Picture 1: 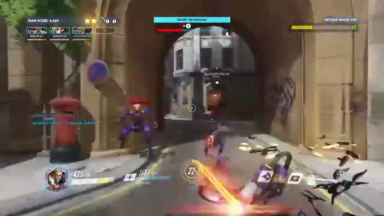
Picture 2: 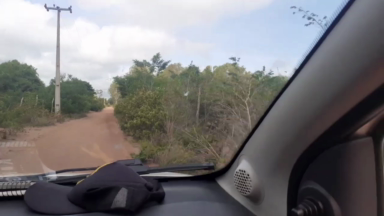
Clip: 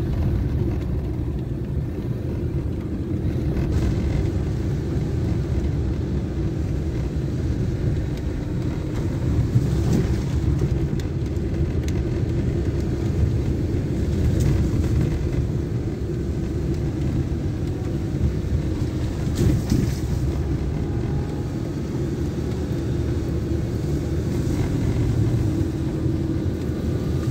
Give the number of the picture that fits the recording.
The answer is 2